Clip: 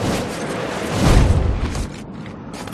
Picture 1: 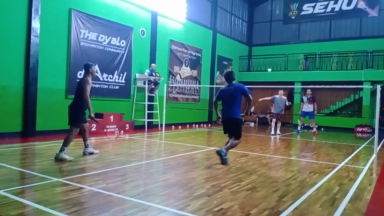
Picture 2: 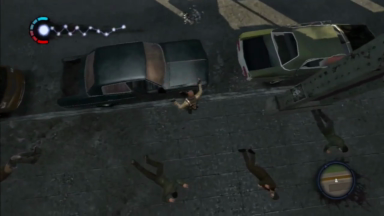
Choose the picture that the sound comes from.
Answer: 2